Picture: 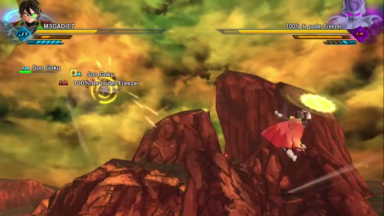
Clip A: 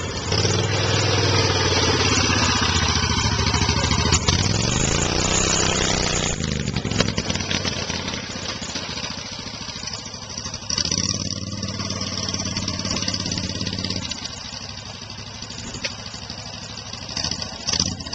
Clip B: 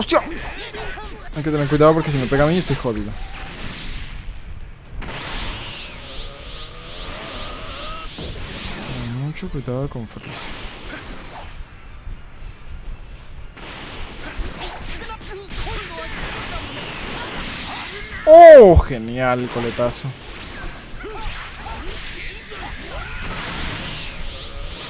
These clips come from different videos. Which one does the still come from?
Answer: B